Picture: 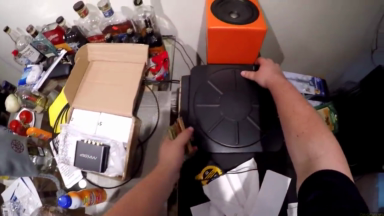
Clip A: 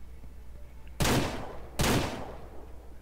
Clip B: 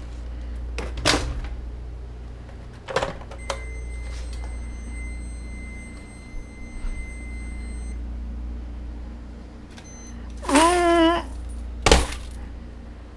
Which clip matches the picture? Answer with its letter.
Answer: B